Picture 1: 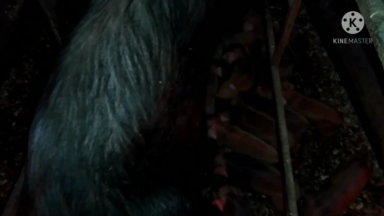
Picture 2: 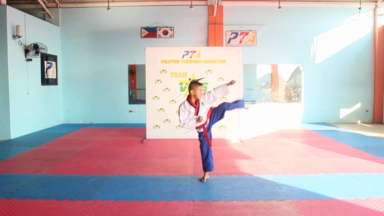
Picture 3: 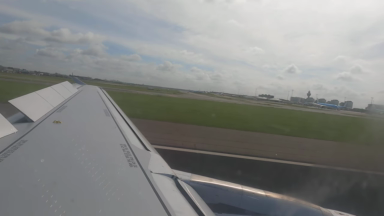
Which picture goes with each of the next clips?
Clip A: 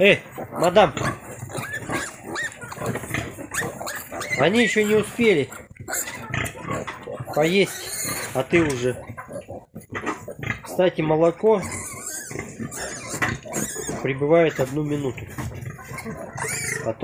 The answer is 1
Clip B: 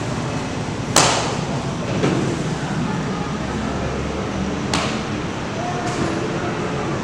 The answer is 2